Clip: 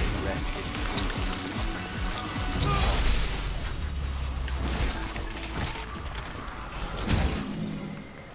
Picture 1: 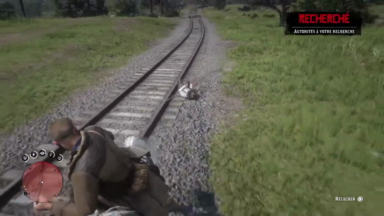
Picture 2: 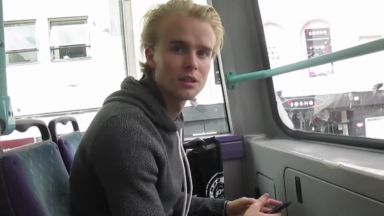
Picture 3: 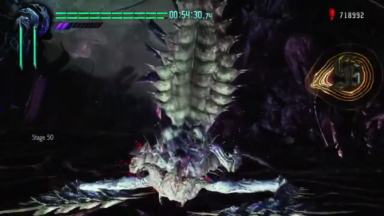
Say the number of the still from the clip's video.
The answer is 3